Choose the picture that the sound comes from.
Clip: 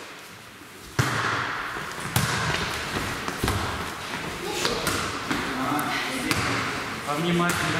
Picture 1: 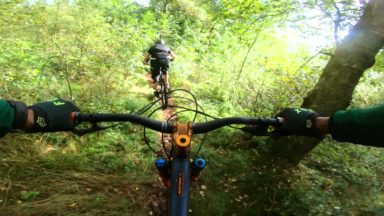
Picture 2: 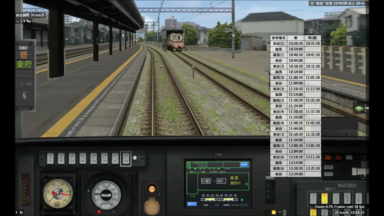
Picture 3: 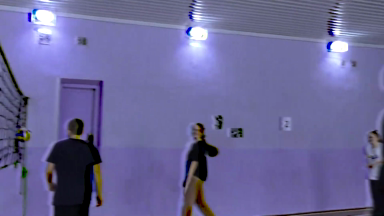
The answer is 3